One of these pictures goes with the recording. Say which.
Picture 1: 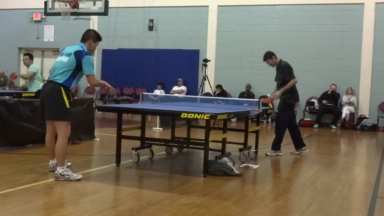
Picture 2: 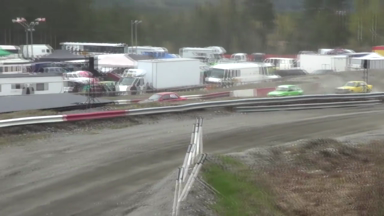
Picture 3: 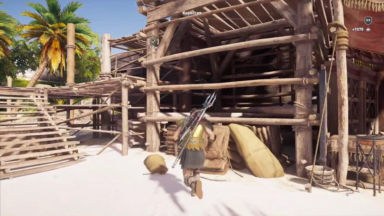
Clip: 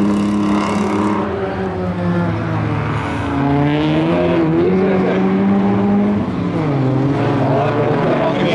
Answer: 2